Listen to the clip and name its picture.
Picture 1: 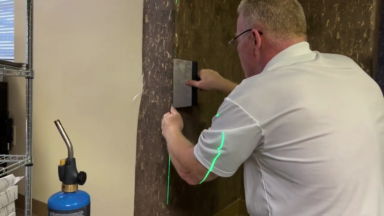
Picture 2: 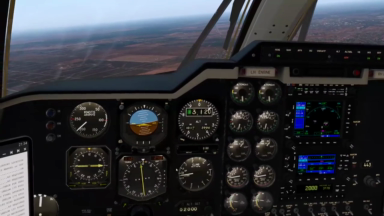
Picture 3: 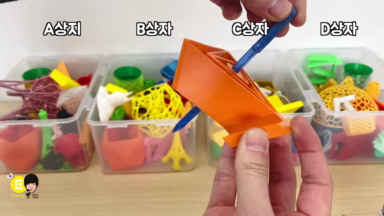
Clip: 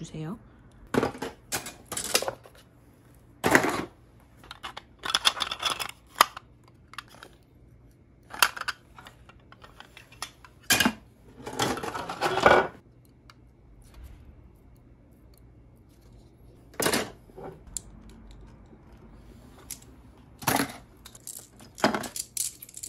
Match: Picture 3